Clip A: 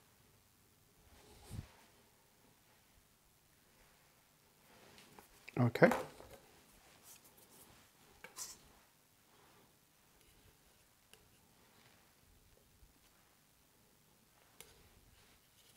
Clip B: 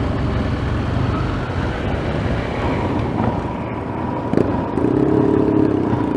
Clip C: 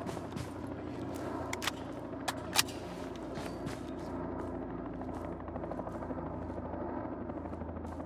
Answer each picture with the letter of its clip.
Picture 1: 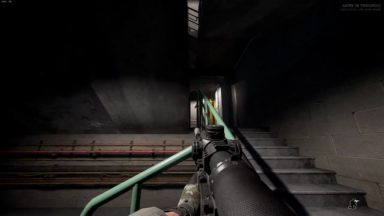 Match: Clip C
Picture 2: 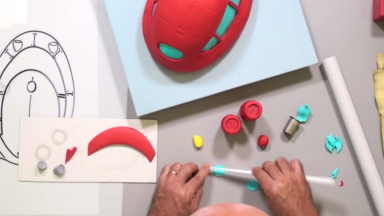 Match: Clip A